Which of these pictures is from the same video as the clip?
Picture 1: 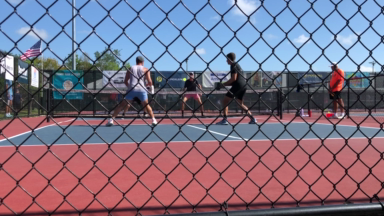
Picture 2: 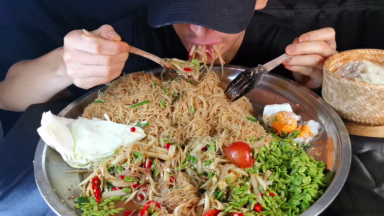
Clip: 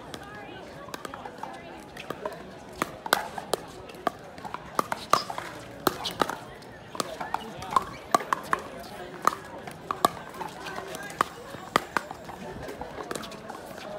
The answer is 1